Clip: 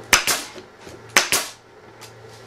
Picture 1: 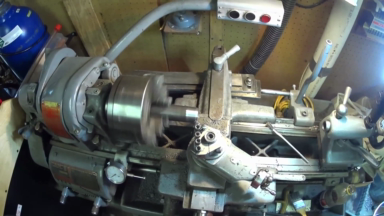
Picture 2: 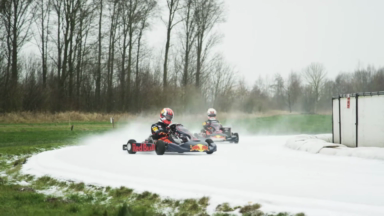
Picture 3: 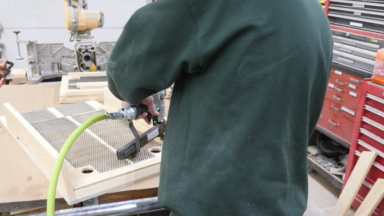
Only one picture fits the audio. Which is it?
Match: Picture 3